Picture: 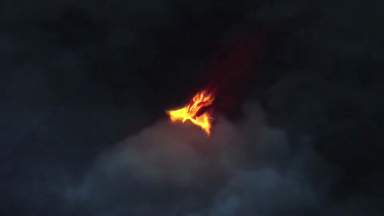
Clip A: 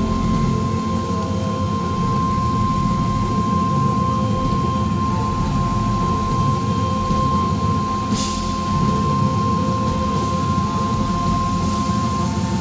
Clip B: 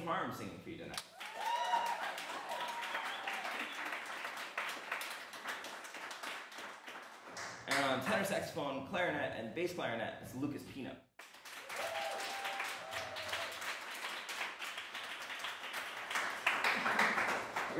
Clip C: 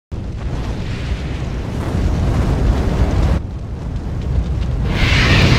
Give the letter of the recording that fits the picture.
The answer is C